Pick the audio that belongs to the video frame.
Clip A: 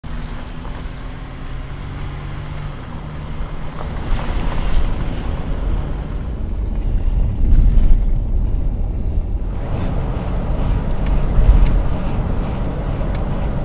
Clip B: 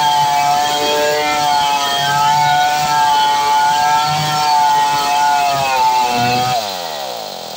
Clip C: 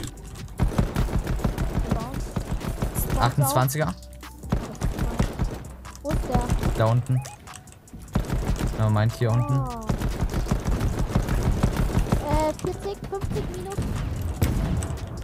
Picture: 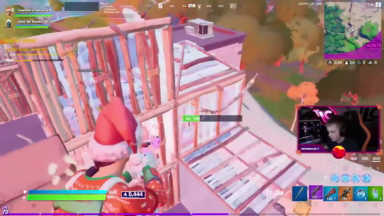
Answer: C